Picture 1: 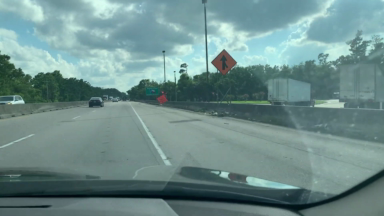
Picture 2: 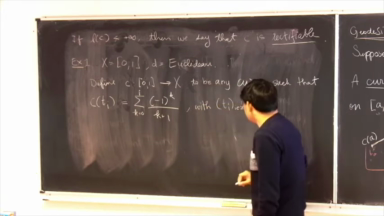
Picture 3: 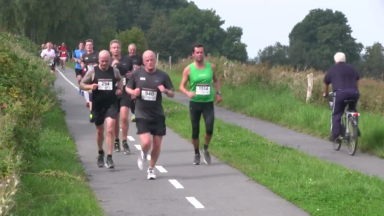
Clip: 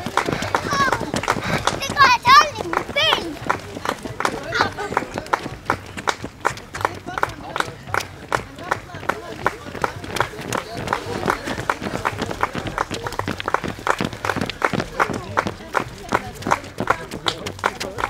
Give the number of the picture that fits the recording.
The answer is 3